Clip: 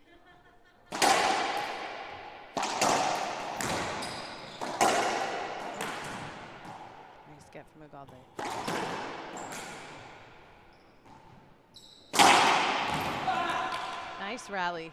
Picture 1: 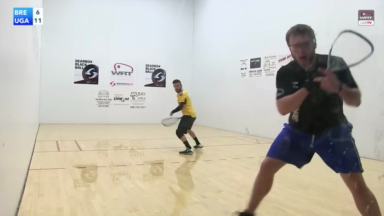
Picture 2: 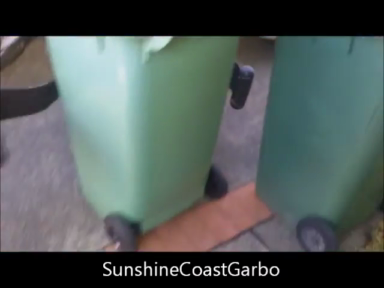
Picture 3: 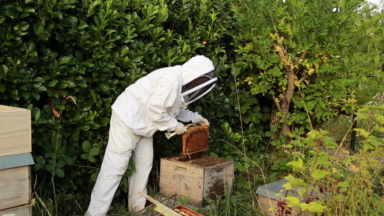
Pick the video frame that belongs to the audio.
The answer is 1